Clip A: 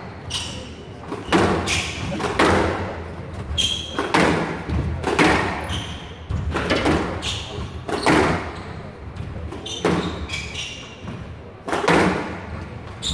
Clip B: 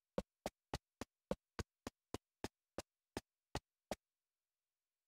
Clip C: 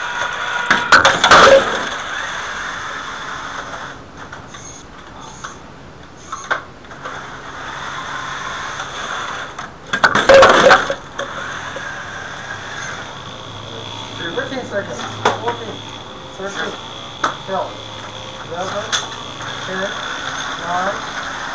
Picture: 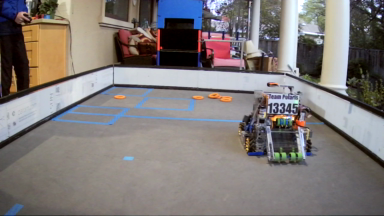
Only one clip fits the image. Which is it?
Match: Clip C